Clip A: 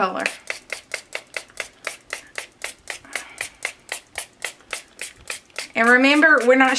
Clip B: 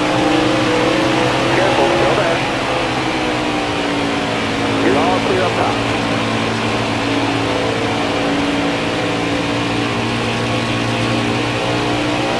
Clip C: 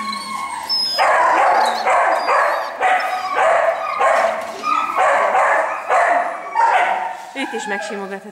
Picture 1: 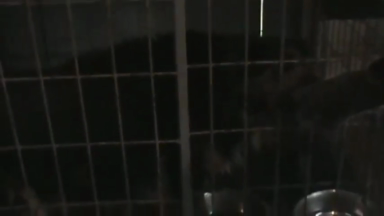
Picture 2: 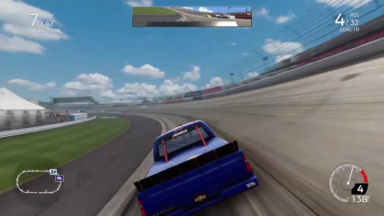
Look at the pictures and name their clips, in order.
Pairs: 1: C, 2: B